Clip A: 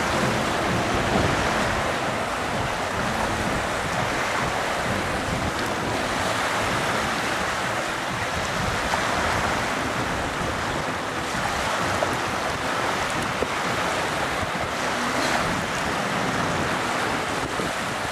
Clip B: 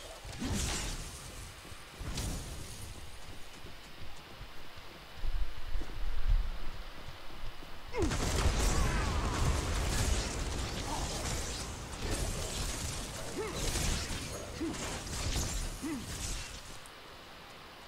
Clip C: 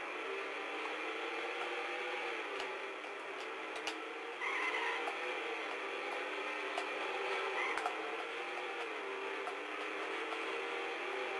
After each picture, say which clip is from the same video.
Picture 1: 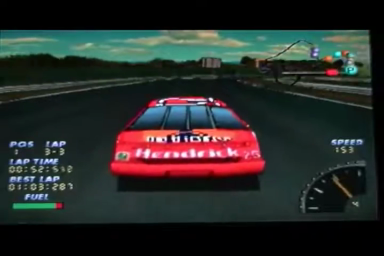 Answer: C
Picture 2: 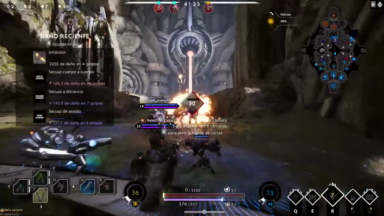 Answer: B